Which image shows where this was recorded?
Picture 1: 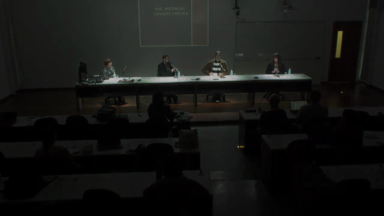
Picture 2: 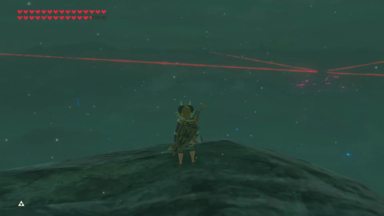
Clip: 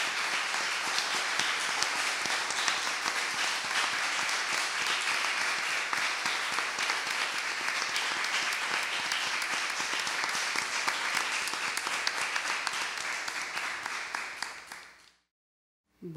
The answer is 1